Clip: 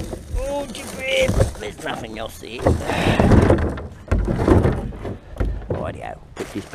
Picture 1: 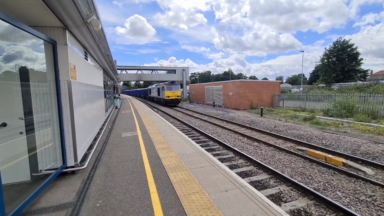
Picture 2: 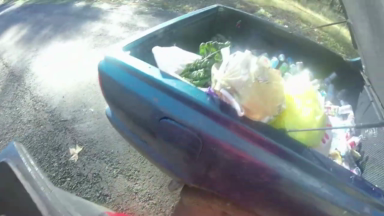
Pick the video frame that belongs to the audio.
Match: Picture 2